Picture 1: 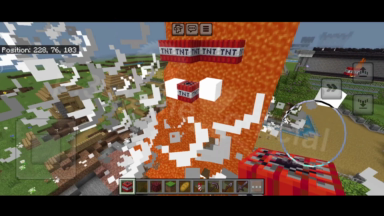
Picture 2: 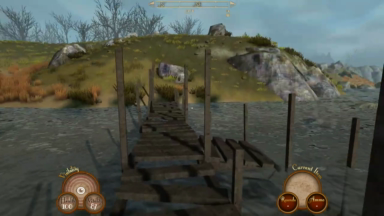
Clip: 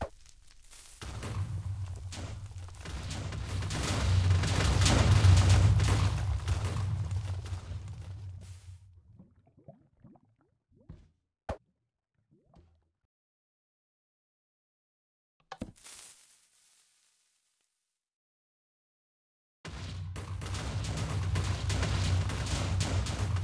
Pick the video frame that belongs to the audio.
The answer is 1